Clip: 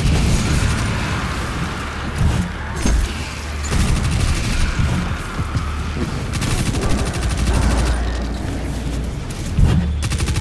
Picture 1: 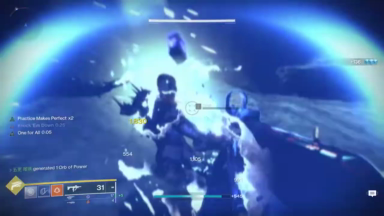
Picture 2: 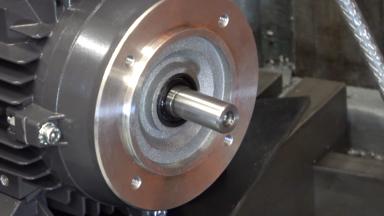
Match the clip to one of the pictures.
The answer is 1